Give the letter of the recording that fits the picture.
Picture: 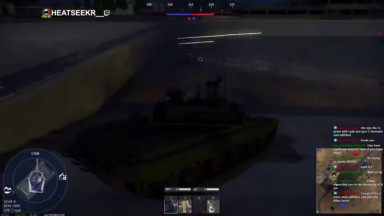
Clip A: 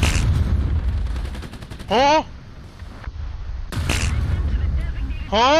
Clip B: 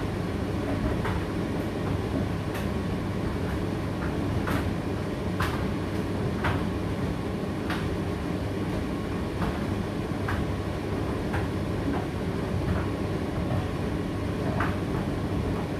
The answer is A